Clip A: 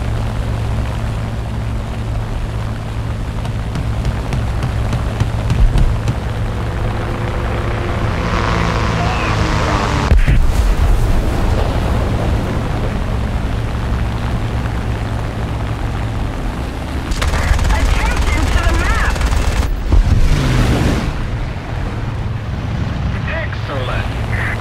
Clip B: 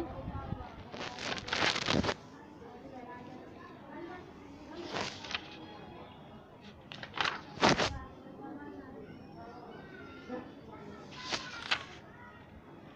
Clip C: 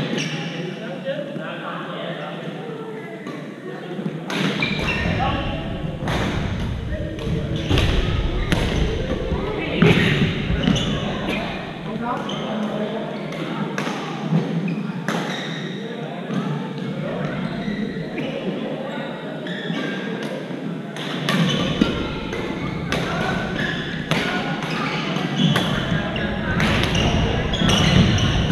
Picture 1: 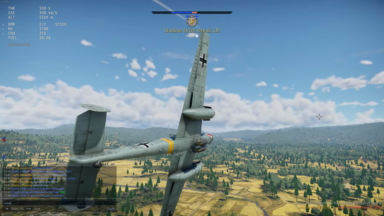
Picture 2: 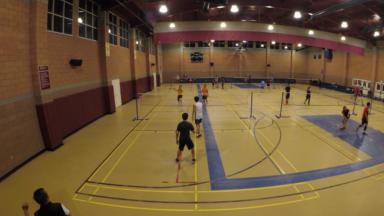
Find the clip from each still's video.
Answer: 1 A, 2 C